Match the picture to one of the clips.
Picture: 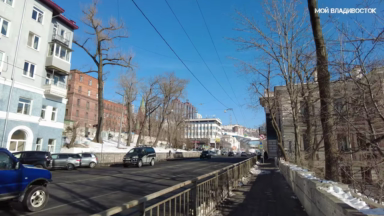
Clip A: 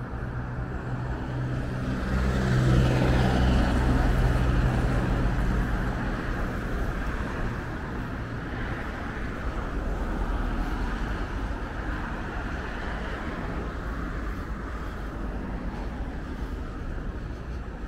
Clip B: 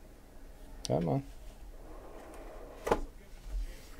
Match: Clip A